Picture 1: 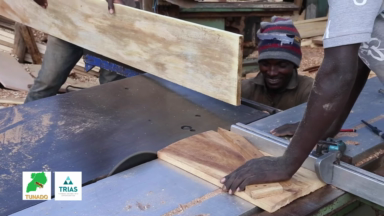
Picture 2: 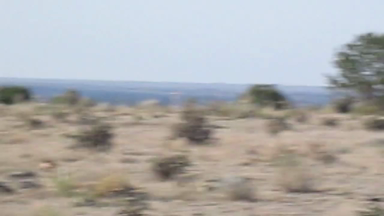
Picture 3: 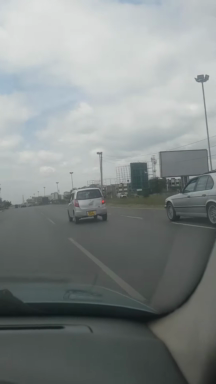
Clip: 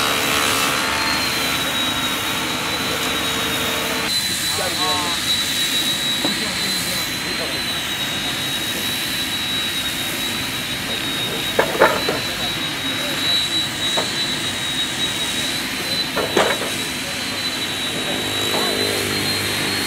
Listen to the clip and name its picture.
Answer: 1